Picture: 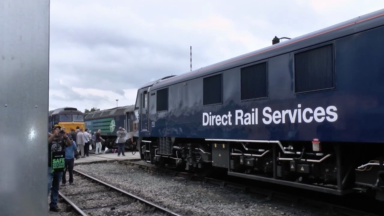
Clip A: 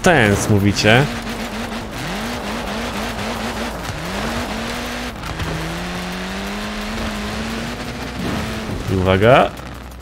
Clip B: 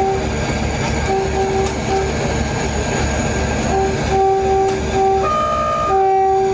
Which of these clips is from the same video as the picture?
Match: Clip B